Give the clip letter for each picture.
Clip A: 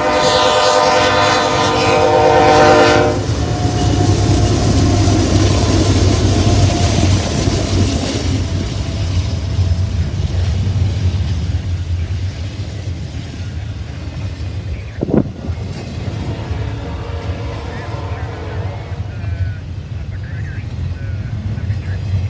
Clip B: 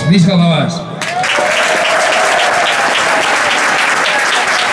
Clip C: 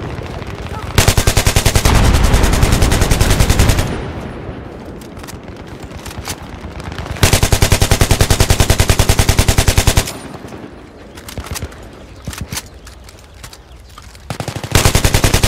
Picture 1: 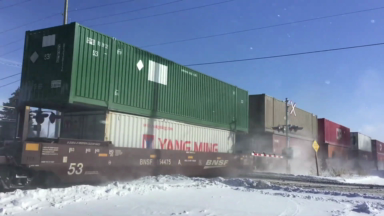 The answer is A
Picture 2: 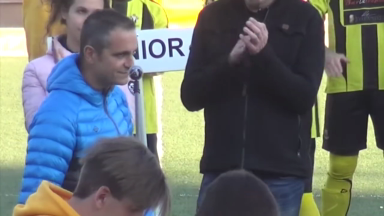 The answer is B